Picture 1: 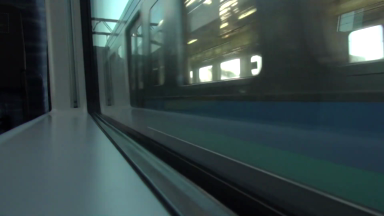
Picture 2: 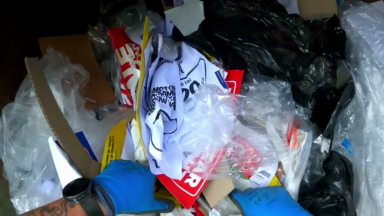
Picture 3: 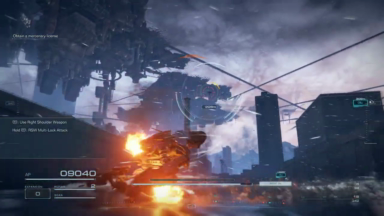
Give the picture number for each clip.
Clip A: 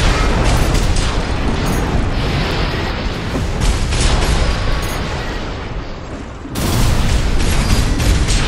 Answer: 3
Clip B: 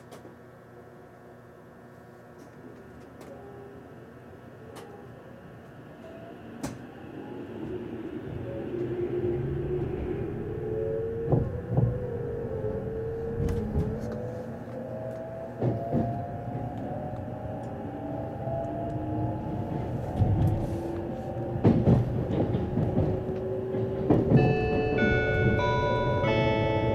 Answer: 1